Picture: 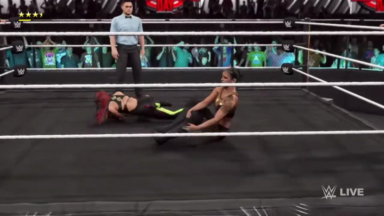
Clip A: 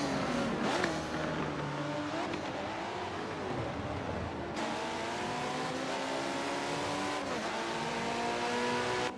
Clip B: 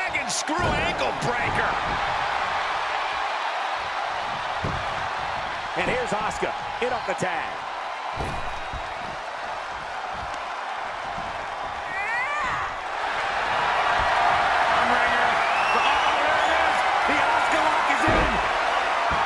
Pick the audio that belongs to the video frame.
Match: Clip B